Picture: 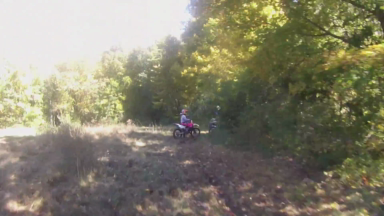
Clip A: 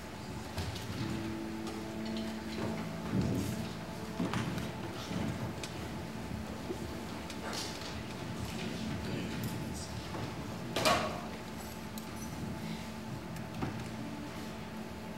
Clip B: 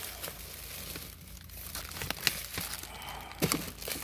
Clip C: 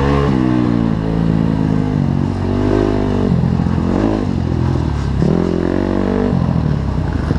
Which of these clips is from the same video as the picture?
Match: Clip C